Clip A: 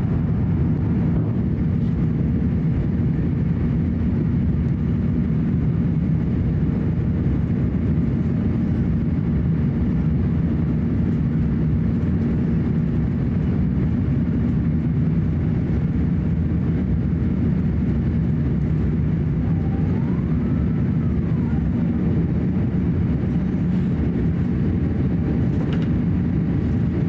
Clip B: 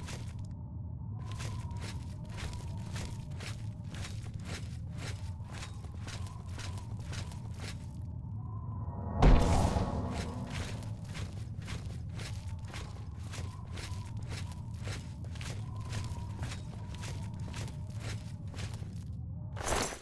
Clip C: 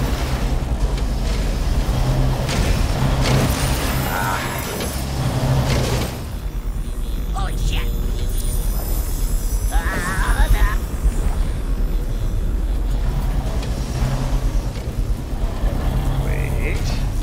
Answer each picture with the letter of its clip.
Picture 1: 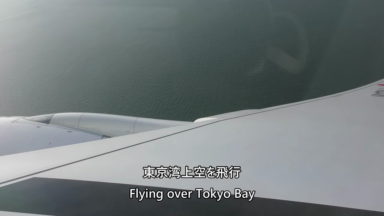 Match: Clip A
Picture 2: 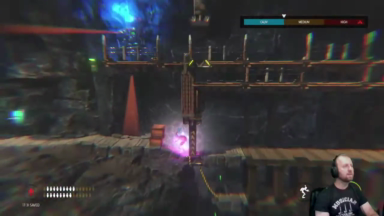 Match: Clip C